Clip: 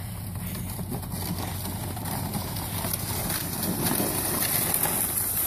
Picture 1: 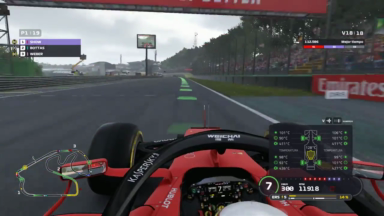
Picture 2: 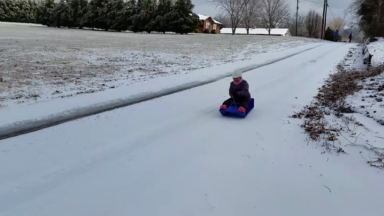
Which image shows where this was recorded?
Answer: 2